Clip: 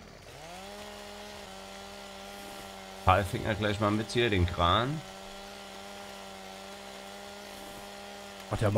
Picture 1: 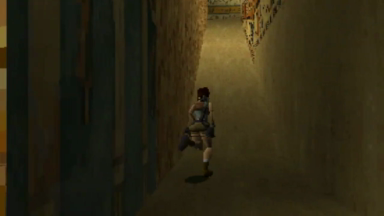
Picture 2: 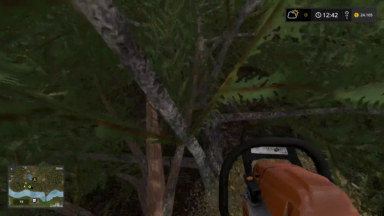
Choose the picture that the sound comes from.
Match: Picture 2